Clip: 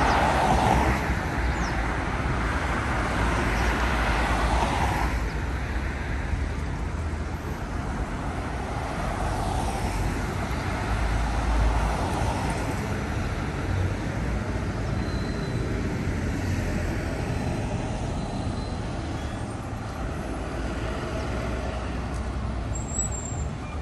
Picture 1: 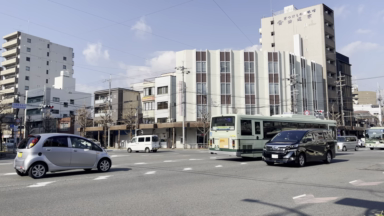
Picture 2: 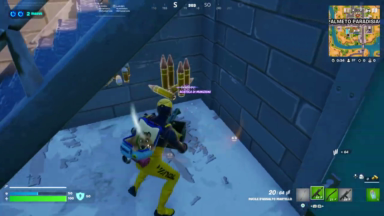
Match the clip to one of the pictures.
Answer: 1